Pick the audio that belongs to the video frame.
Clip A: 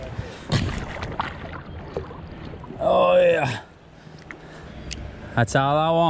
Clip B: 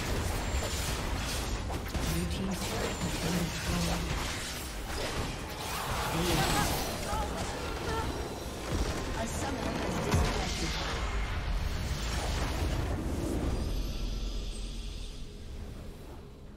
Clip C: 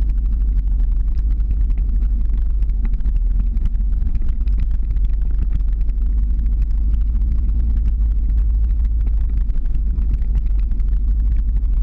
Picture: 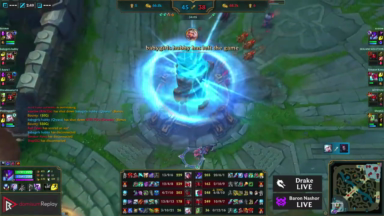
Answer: B